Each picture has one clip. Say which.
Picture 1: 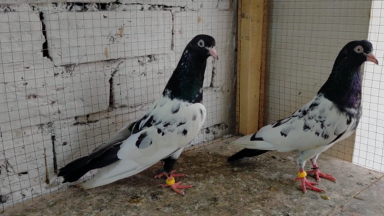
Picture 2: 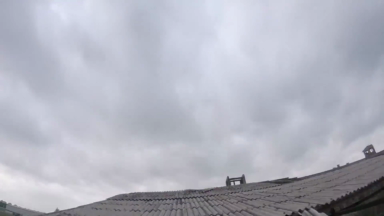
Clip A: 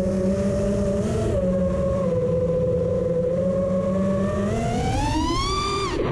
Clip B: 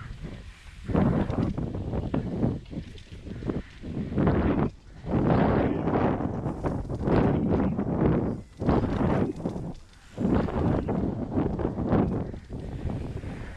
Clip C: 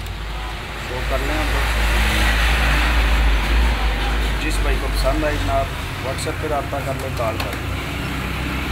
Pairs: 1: C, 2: A